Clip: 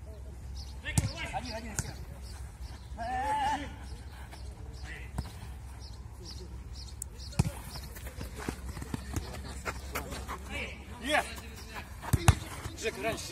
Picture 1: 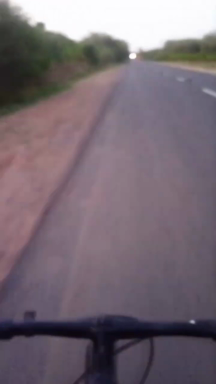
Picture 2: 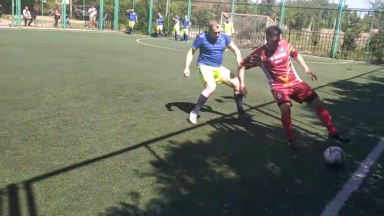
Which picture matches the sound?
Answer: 2